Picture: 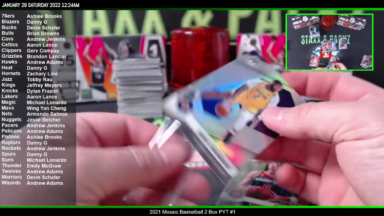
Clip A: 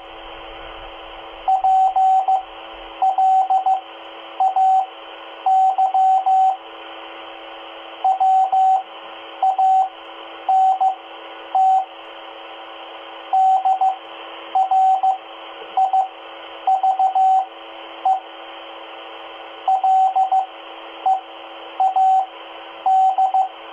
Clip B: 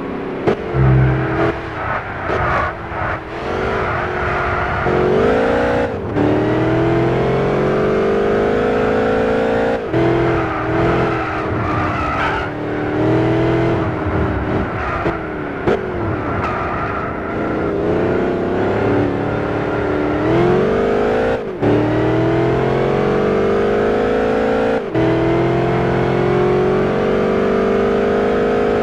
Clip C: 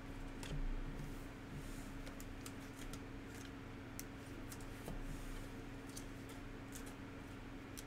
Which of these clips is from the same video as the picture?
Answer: C